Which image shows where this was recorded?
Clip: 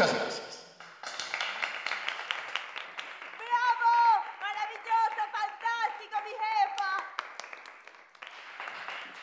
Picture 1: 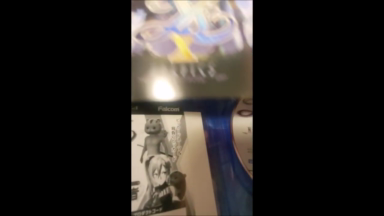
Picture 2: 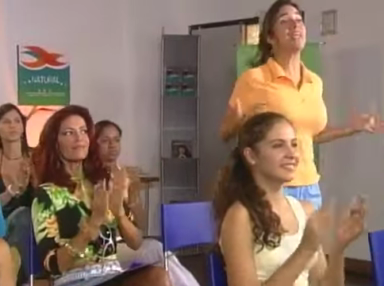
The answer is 2